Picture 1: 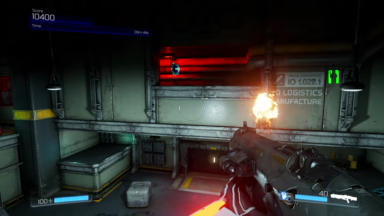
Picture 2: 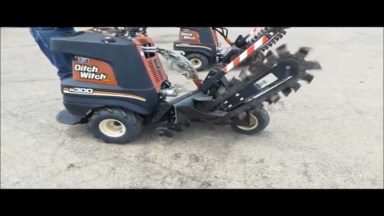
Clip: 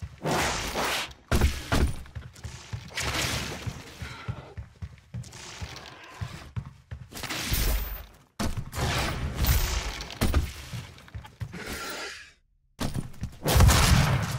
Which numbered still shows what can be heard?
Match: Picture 1